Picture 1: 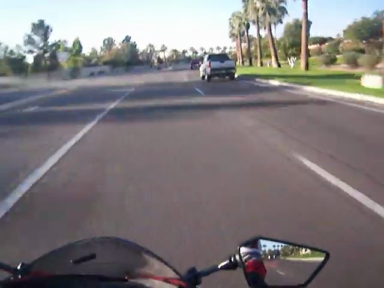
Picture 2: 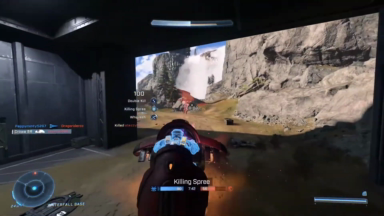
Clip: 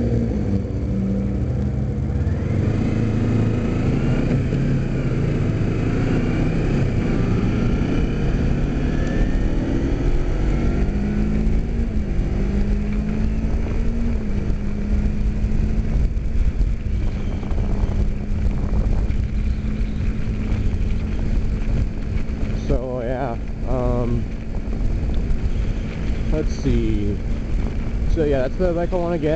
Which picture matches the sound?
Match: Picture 1